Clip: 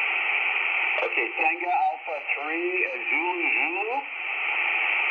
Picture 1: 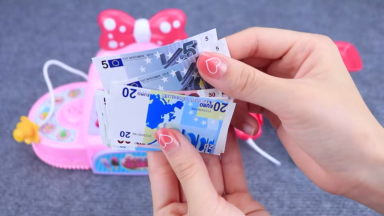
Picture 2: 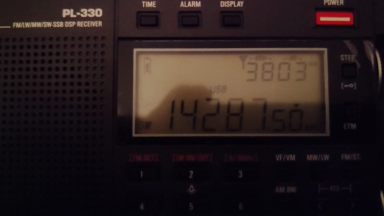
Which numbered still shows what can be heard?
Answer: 2